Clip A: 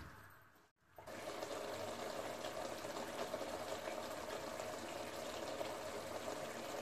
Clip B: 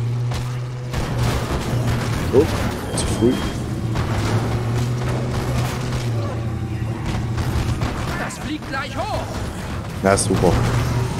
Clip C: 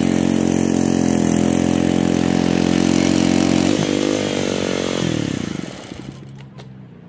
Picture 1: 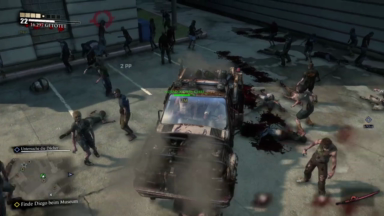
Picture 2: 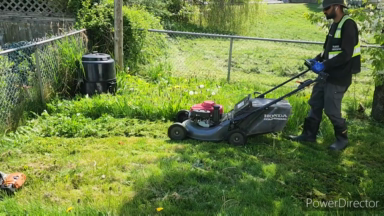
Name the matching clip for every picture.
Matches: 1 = B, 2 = C